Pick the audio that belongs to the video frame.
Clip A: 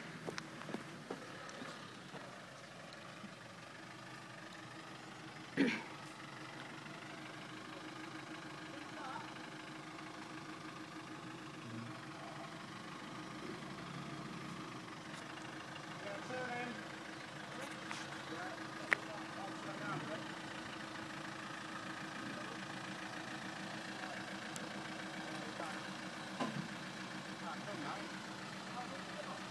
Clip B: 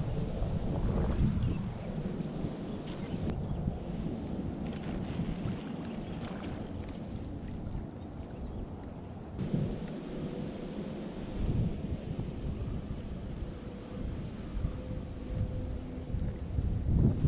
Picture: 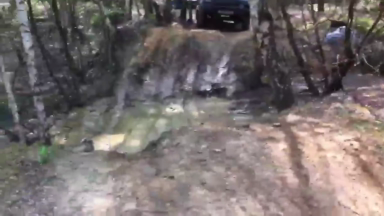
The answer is A